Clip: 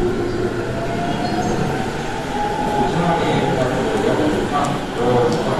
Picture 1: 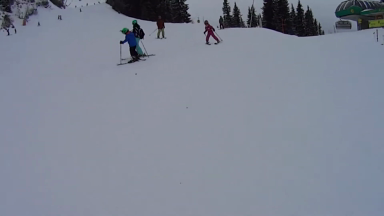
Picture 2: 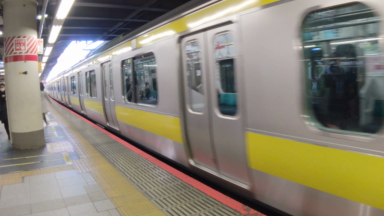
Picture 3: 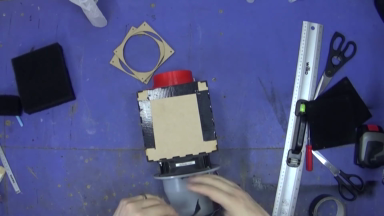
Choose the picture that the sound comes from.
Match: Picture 2